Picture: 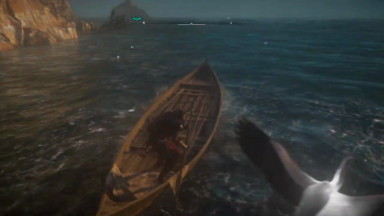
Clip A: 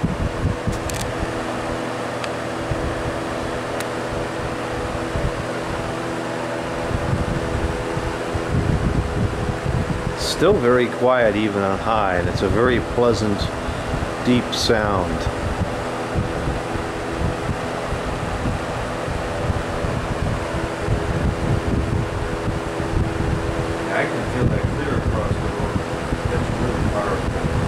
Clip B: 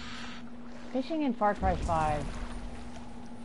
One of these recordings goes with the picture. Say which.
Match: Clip B